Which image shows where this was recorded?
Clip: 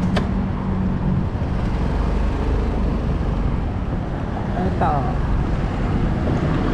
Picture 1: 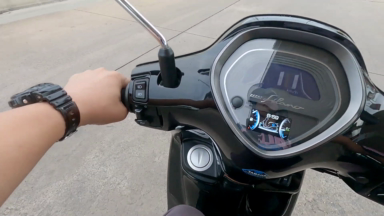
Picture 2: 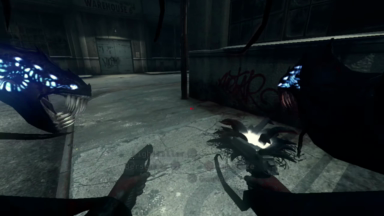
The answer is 1